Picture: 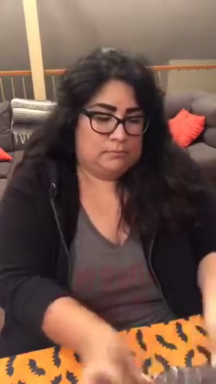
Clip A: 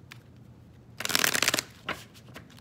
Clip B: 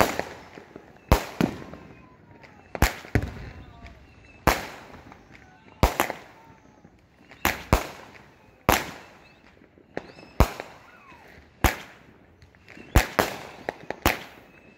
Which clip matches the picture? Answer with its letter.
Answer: A